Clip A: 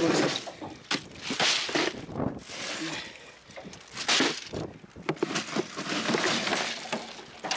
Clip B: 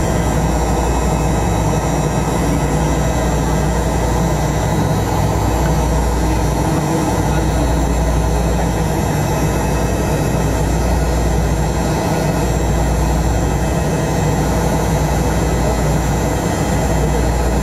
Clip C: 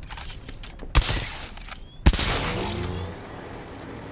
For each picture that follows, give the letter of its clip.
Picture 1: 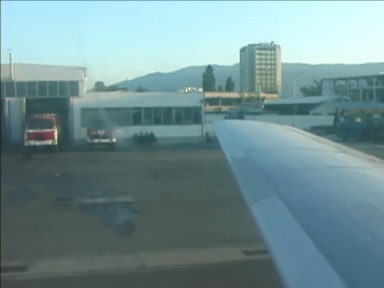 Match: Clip B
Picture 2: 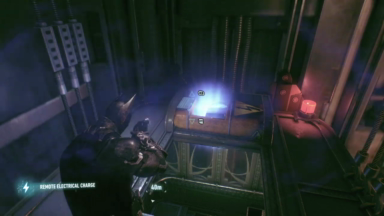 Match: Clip C